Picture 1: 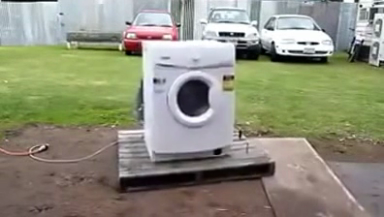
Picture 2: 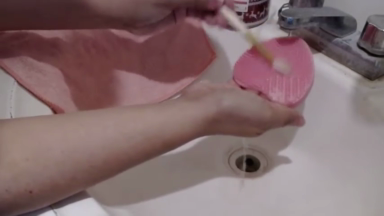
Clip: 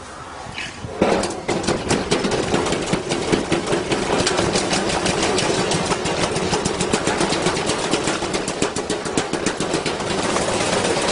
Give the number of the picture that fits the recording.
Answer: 1